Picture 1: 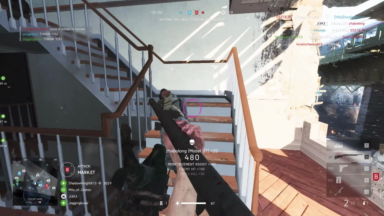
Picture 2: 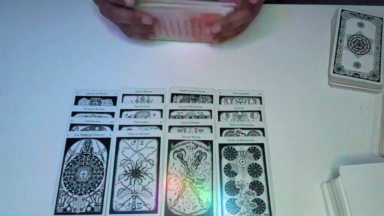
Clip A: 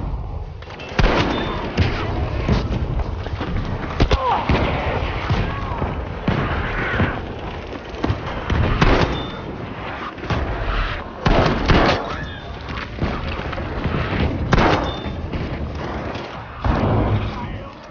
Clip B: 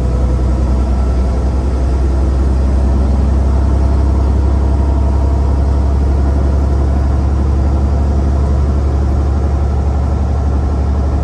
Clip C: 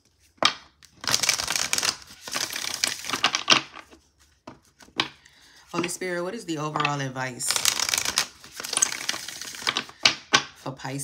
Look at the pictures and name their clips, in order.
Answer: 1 A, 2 C